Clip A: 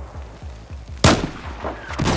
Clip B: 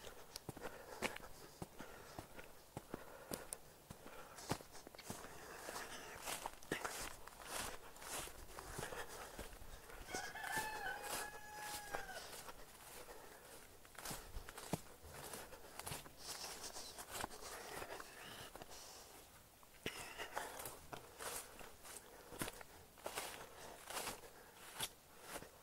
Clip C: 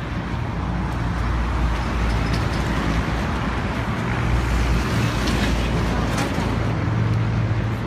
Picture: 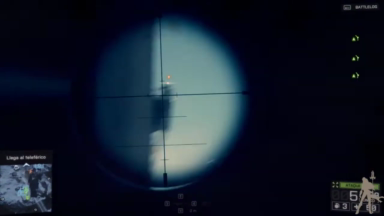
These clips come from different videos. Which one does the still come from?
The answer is A